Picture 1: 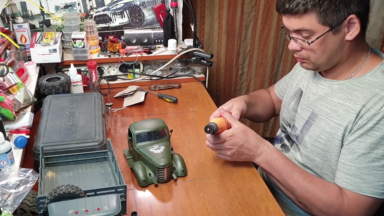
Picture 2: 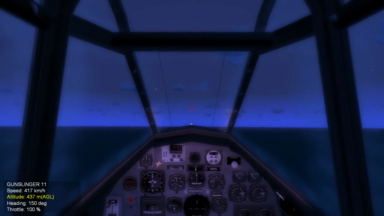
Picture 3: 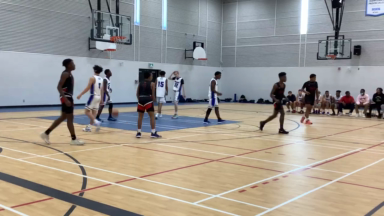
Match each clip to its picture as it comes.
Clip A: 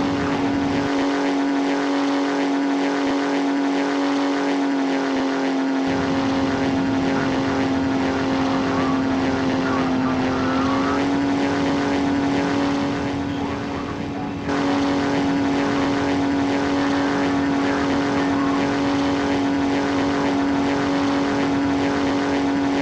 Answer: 2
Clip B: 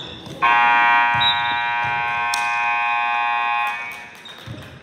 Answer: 3